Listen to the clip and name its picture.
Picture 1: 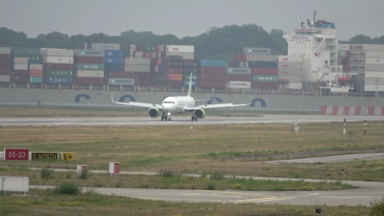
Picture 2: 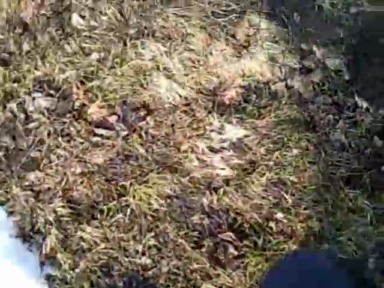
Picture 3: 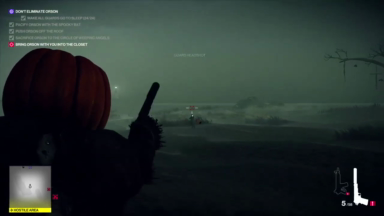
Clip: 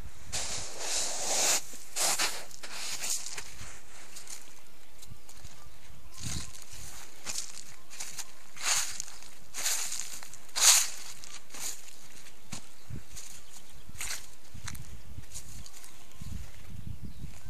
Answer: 2